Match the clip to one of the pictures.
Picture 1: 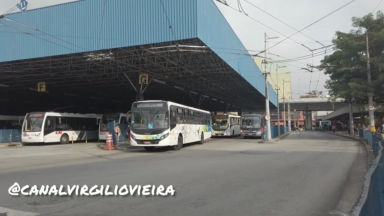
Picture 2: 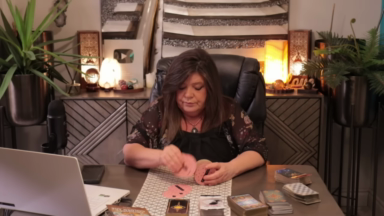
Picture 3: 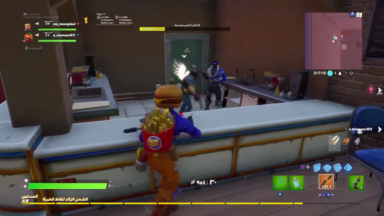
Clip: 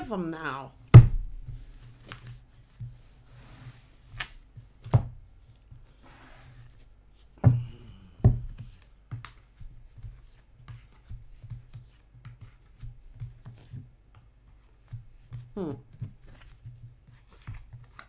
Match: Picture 2